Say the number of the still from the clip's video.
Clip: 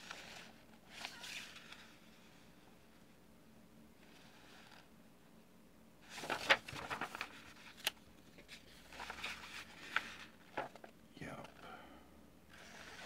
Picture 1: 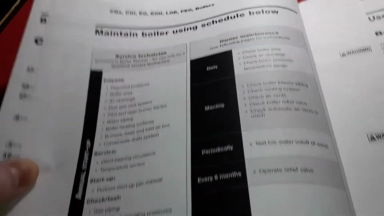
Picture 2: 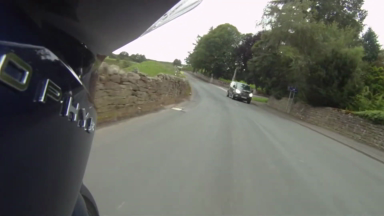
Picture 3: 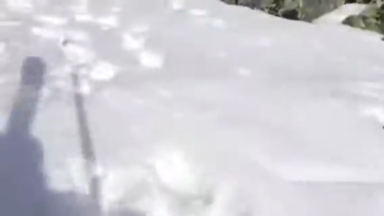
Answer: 1